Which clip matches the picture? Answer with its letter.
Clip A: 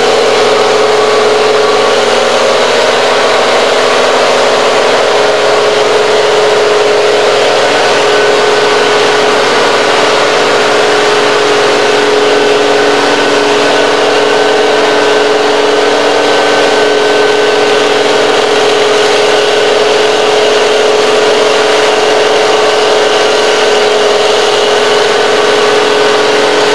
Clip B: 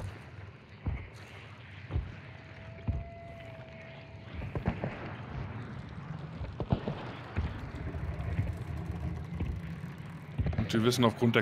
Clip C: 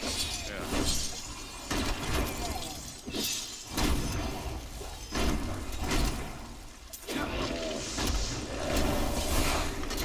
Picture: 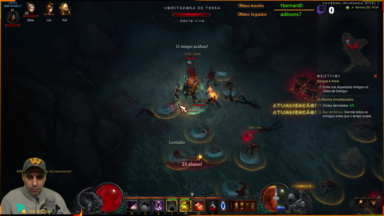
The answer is C